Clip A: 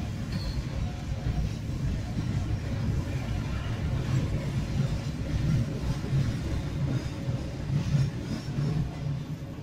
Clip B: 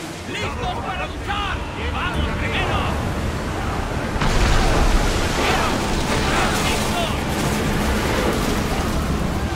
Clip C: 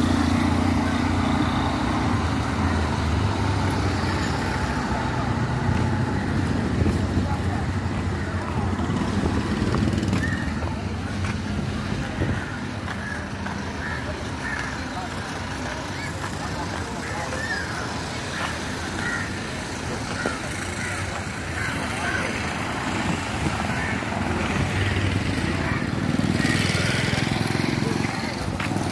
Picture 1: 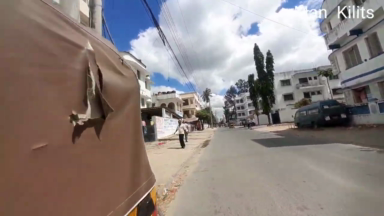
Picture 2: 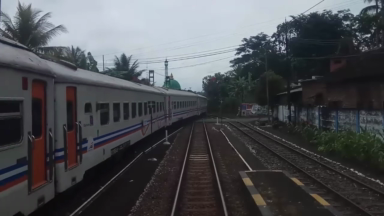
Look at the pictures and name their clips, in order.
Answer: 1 C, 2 A